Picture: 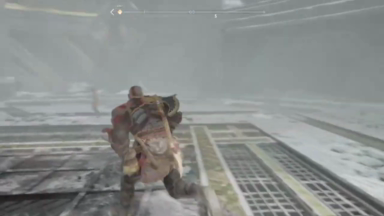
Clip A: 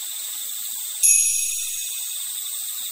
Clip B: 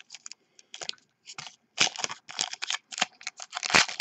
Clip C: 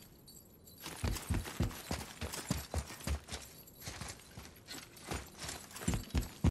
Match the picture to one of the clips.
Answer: C